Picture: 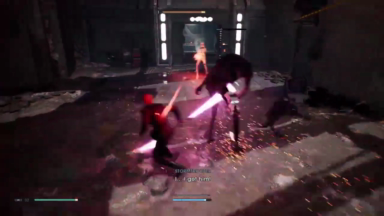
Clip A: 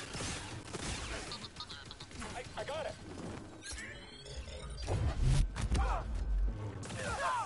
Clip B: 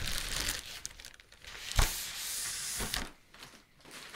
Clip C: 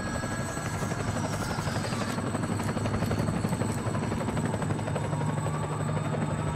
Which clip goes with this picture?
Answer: A